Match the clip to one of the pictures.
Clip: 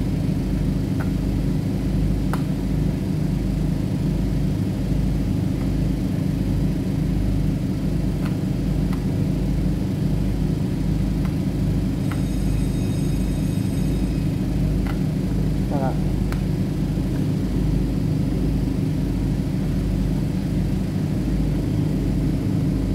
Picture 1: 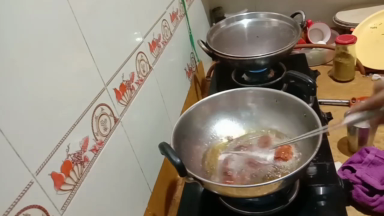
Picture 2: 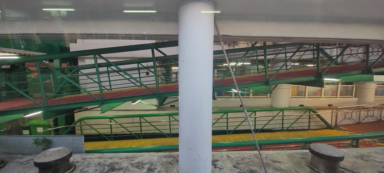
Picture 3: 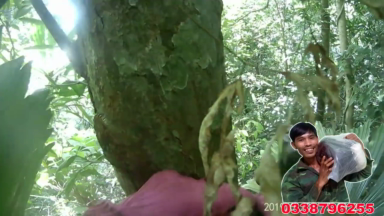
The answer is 2